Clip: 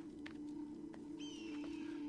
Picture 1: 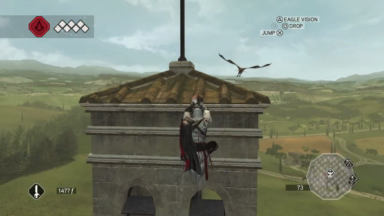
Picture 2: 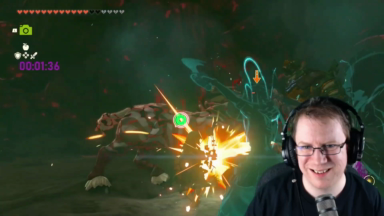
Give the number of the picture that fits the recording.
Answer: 1